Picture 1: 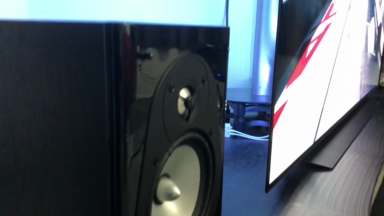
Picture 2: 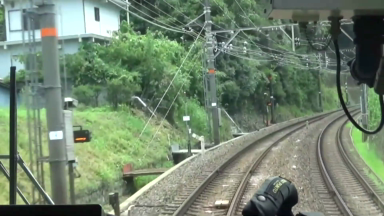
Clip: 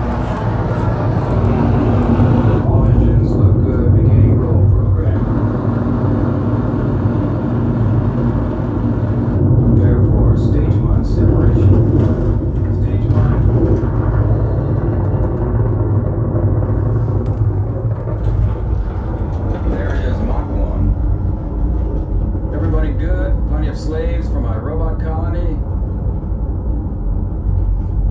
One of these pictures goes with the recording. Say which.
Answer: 1